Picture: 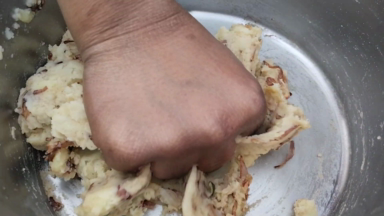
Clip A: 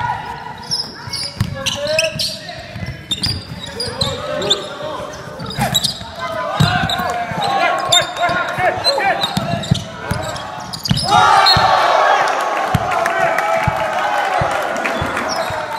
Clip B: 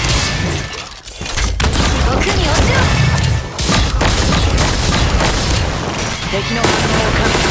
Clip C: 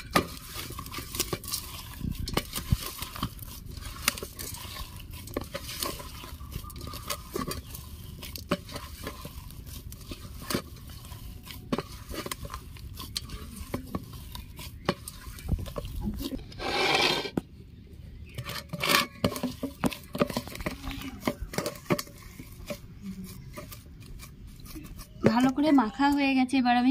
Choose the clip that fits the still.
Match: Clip C